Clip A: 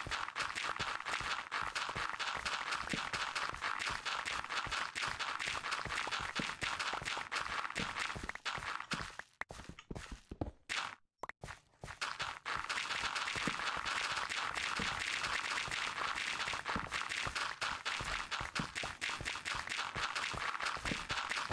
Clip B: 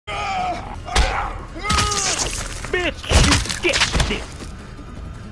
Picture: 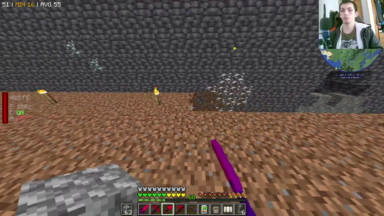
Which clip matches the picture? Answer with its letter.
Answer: A